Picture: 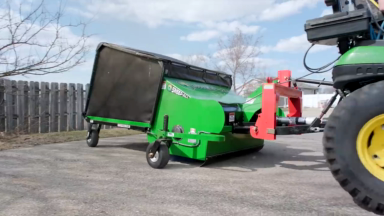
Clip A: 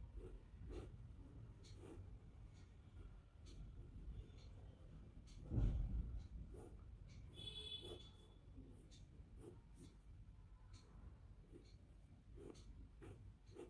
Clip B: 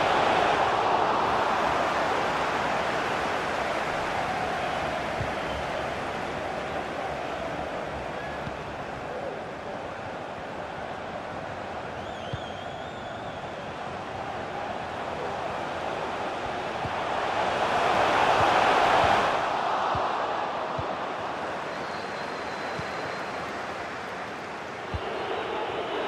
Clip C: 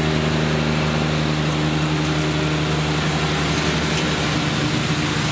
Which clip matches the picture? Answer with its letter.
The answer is C